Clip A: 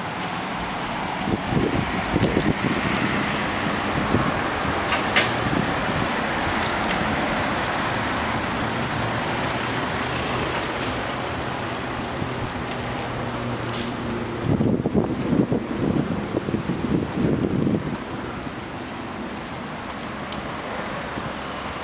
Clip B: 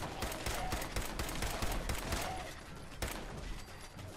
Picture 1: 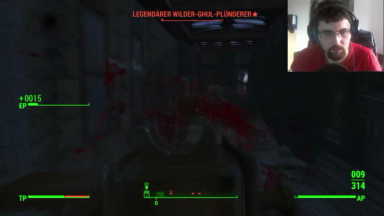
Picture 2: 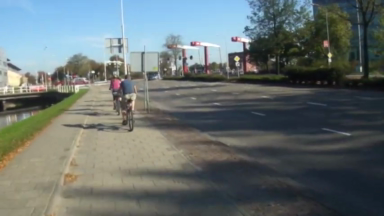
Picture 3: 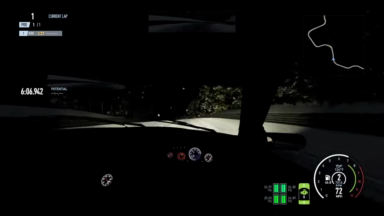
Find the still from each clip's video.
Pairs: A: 2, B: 1